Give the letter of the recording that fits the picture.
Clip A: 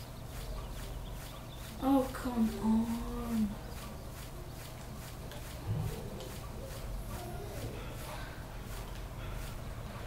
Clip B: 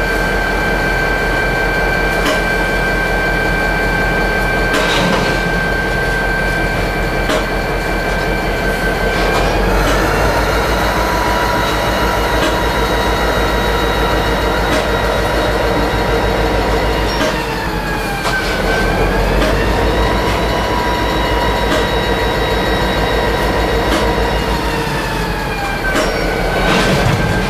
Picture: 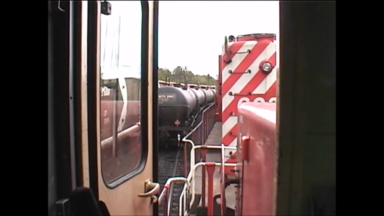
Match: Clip B